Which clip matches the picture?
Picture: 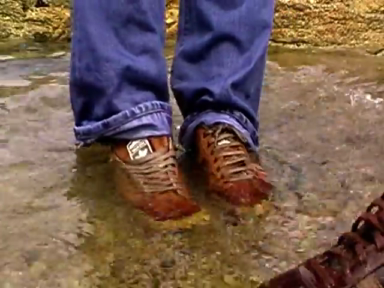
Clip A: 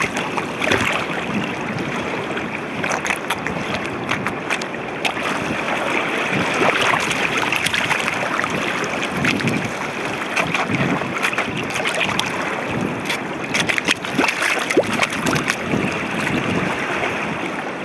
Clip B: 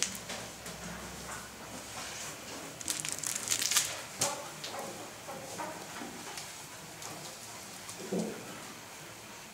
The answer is A